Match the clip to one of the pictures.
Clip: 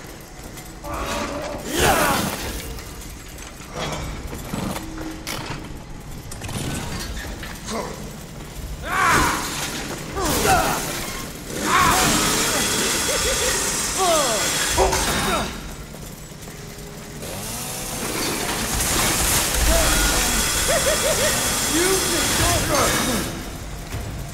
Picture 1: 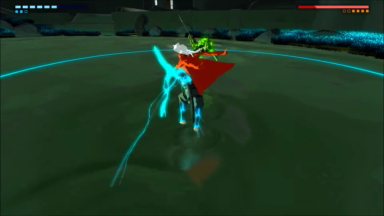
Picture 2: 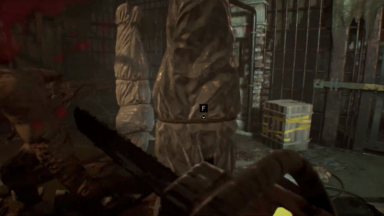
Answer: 2